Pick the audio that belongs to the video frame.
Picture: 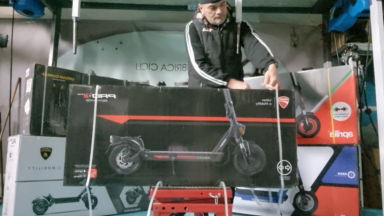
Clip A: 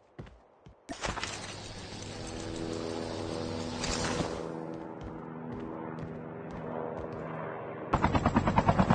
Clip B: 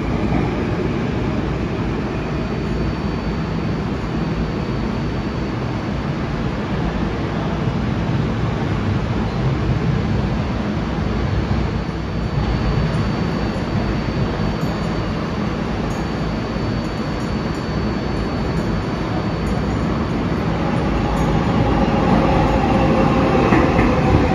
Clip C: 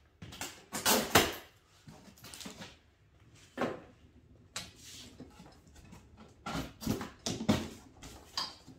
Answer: C